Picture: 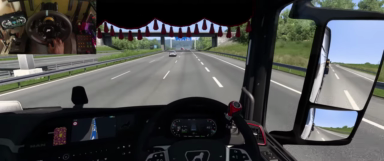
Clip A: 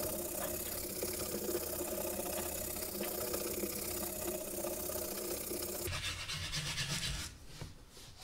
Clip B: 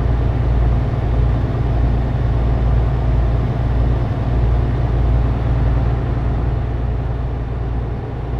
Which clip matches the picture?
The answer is B